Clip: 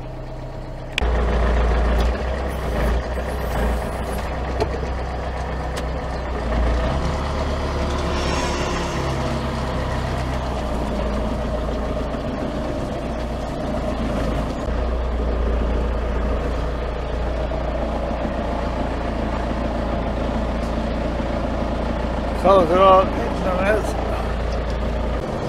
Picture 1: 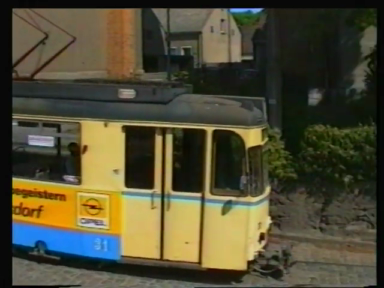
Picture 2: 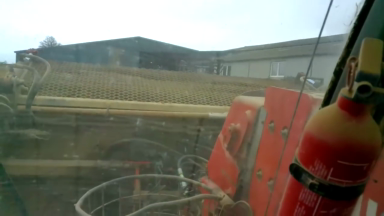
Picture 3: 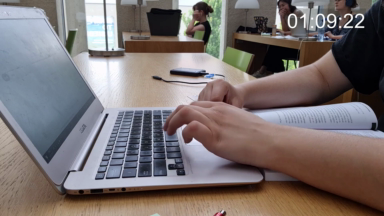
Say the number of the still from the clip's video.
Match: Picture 2